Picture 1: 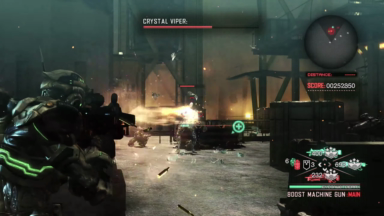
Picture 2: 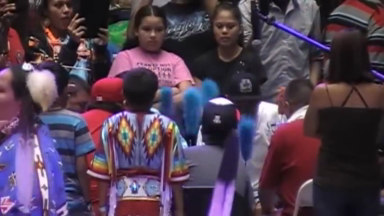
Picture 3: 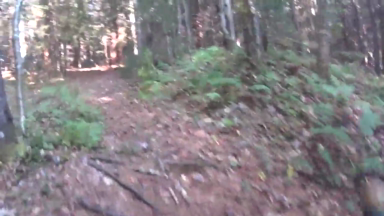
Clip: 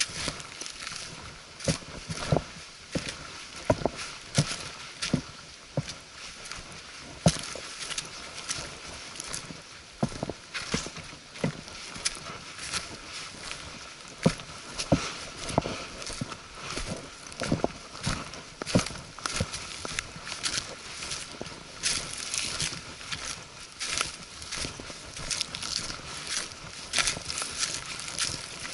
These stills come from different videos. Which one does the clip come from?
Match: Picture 3